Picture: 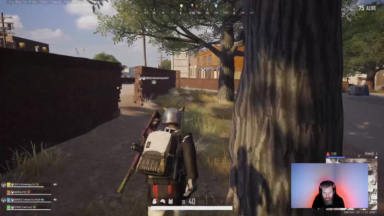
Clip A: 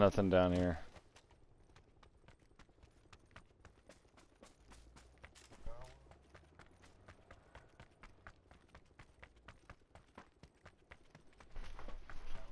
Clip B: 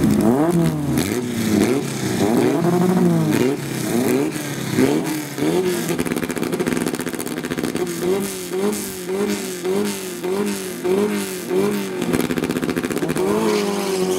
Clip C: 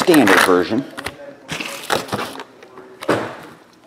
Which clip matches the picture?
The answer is A